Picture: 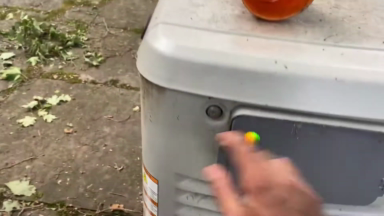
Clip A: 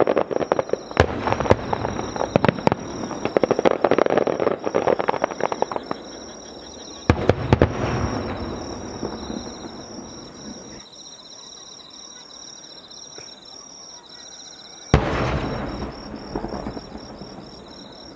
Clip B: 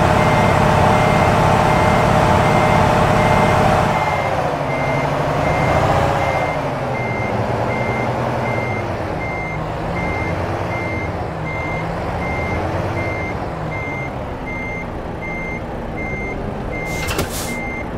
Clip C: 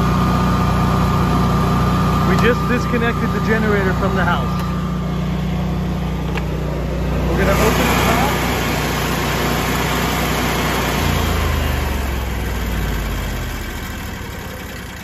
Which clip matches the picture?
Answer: C